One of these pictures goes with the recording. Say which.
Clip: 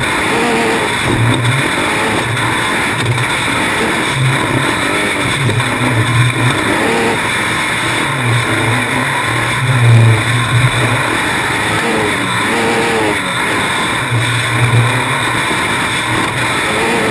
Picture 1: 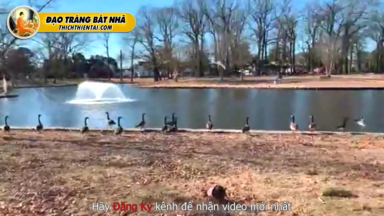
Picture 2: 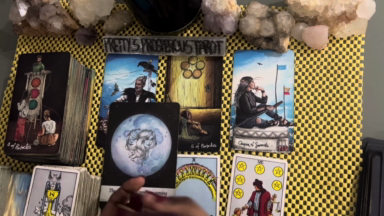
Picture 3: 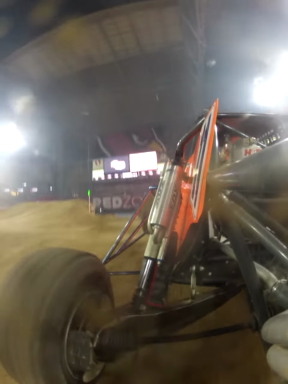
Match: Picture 3